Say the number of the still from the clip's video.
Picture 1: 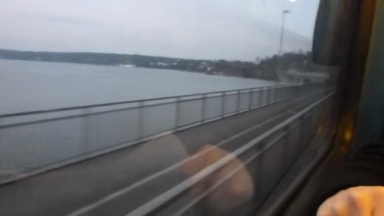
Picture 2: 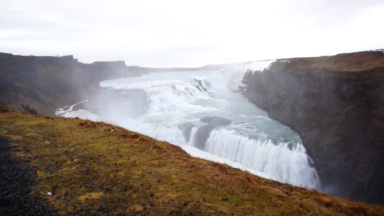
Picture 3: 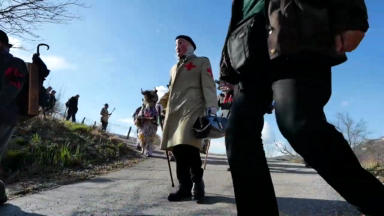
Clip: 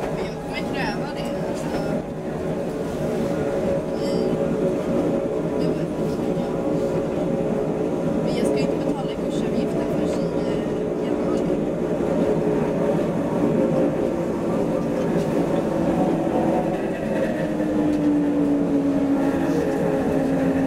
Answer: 1